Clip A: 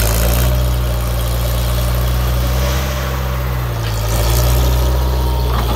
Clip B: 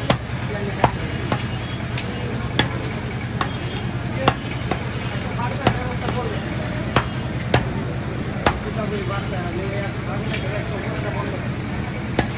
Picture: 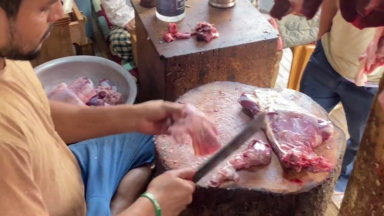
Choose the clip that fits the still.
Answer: B